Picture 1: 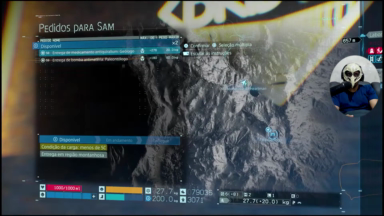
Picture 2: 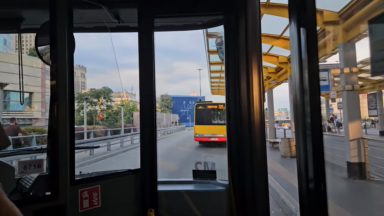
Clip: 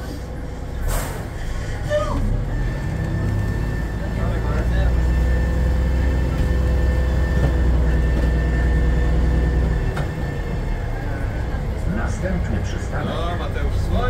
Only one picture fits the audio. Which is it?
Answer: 2